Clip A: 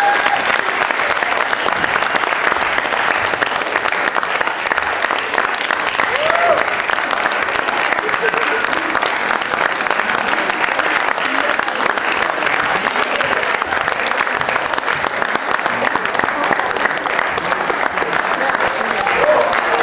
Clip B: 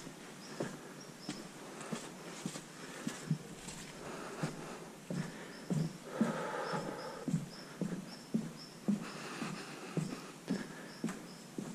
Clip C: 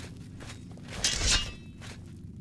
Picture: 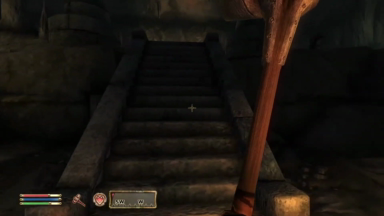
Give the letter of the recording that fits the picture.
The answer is C